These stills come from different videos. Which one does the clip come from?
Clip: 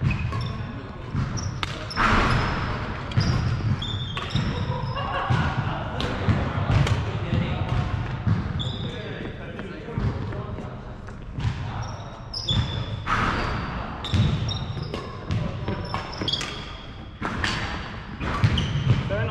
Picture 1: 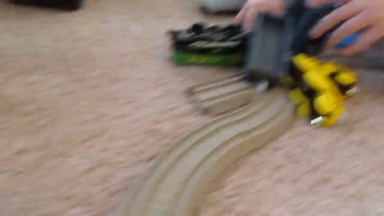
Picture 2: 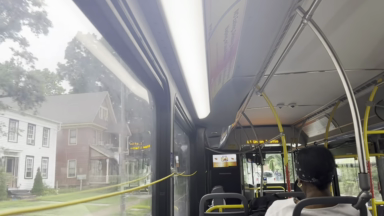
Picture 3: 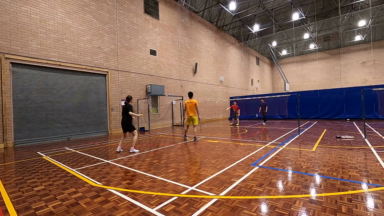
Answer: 3